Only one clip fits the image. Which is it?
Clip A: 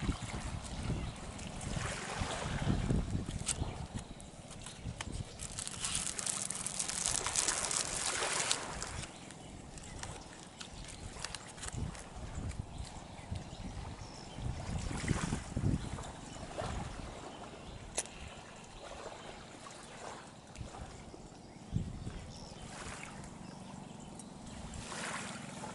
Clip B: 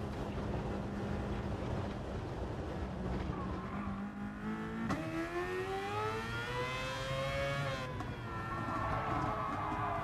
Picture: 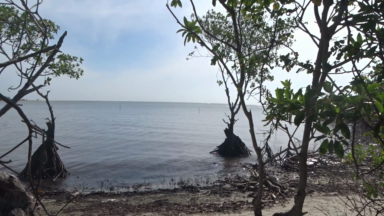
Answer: A